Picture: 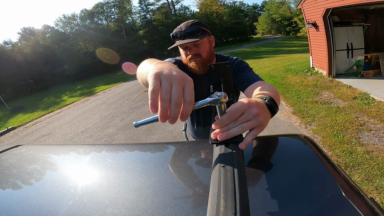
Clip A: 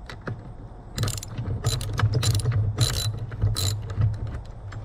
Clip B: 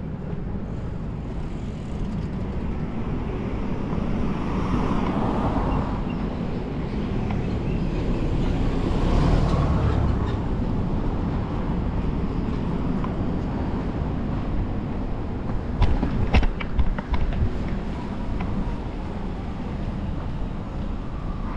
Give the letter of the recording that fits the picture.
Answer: A